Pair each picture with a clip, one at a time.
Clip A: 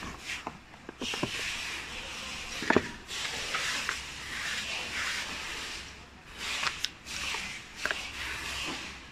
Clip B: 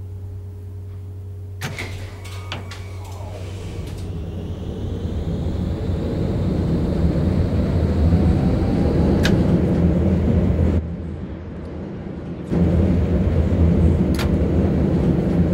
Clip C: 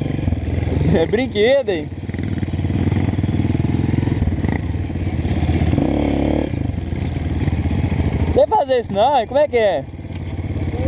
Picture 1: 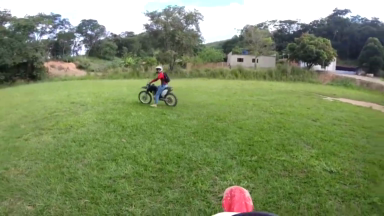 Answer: C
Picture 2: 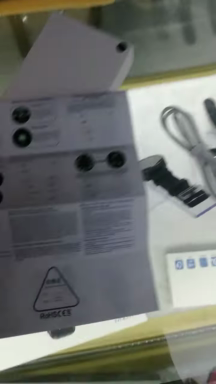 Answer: A